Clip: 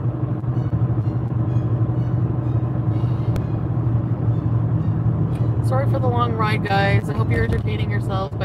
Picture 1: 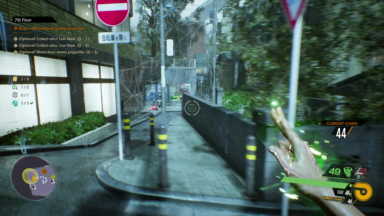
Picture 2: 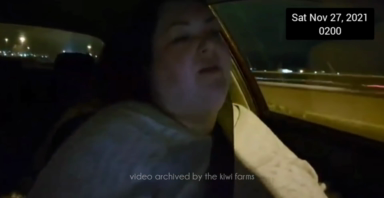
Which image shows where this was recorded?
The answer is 2